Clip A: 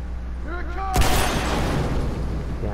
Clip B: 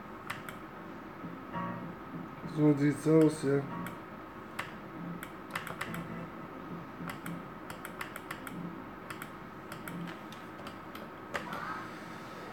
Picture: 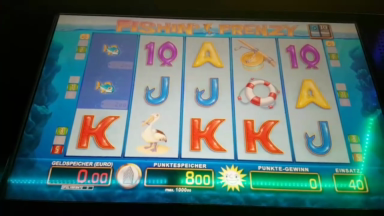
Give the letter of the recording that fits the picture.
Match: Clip B